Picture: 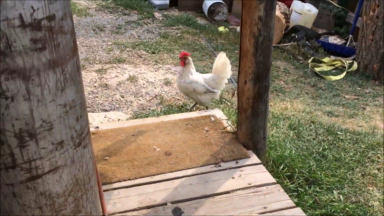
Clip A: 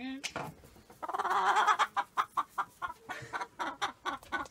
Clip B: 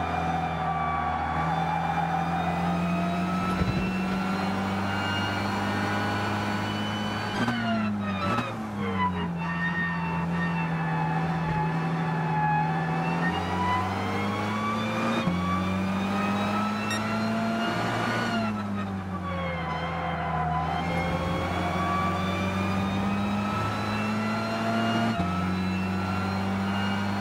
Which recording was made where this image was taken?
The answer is A